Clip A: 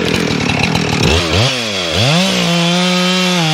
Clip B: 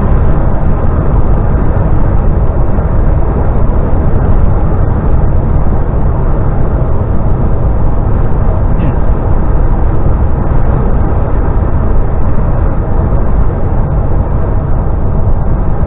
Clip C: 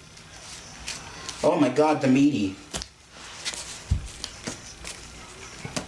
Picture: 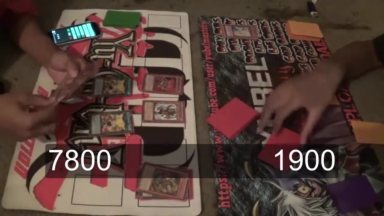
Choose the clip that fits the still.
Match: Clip C